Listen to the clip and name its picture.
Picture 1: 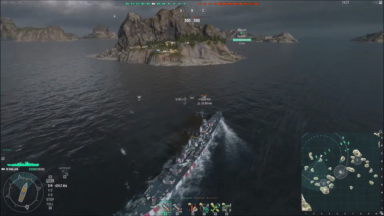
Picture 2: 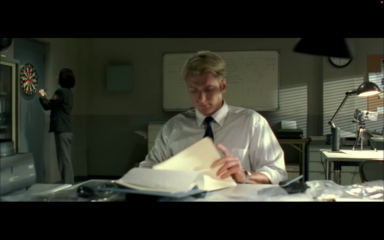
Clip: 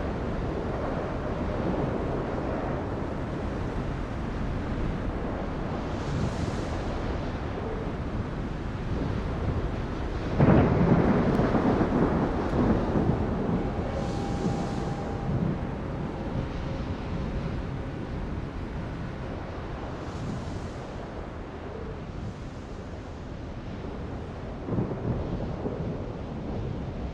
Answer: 1